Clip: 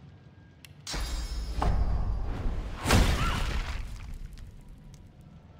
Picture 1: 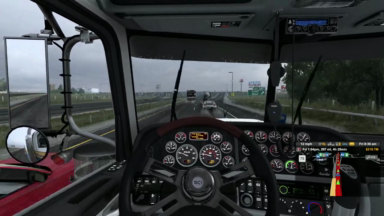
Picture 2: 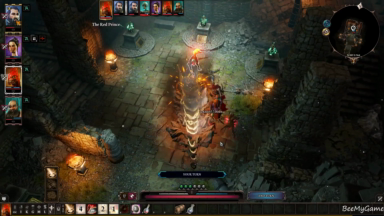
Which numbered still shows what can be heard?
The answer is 2